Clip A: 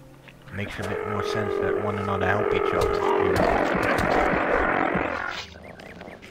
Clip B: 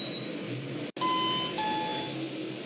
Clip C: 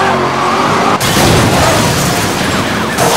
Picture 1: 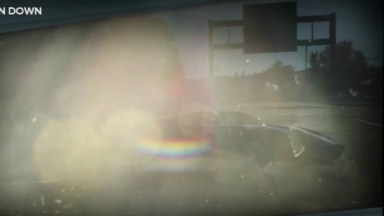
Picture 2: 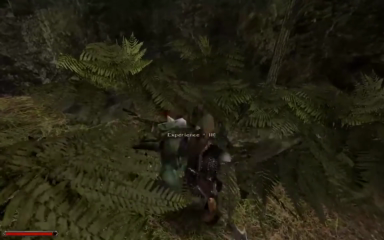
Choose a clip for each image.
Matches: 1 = C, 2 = A